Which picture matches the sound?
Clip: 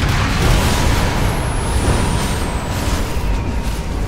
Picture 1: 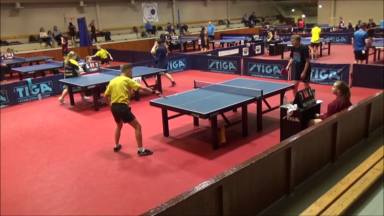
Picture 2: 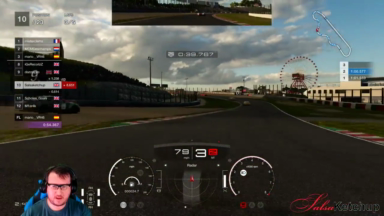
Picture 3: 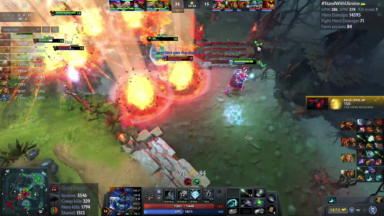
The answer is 3